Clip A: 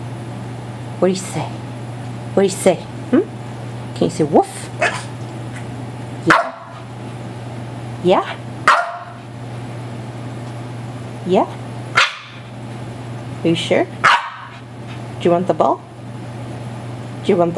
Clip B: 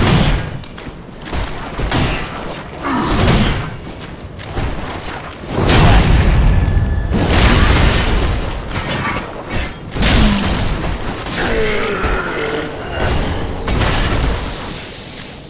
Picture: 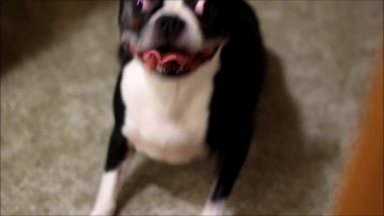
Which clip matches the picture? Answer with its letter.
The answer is A